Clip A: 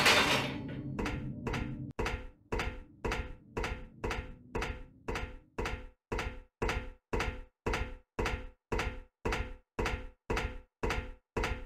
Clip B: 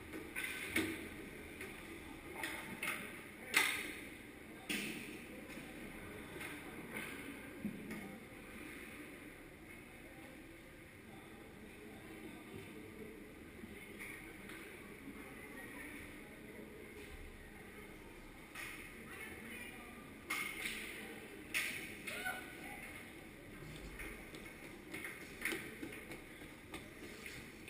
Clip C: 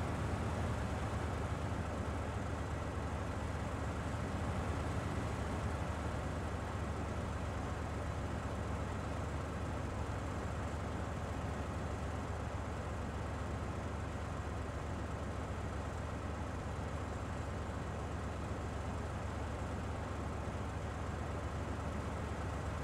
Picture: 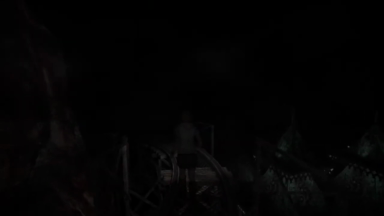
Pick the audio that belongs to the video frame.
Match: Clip A